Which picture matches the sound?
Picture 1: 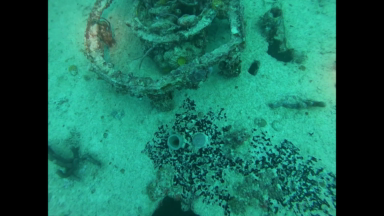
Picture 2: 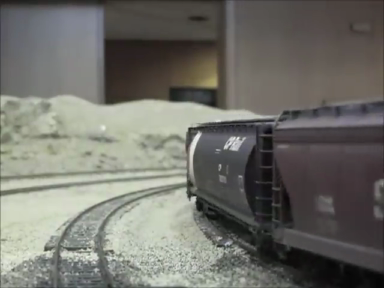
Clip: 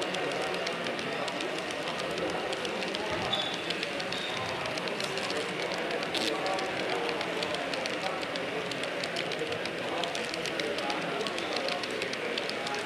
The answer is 2